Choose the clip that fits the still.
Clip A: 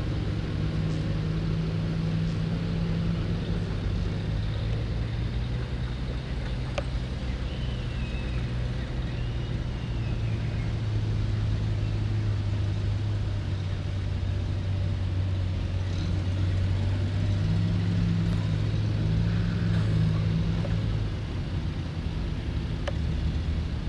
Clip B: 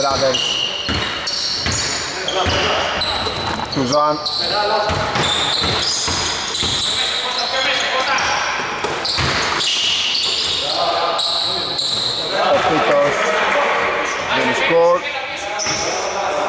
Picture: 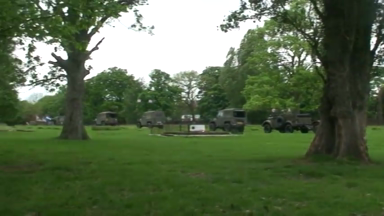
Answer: A